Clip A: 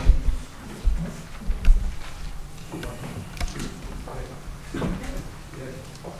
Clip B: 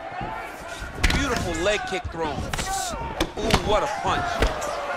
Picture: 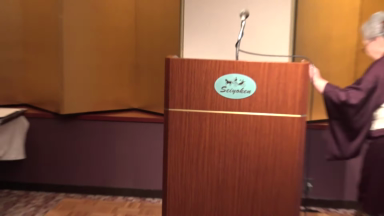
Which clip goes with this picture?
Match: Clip A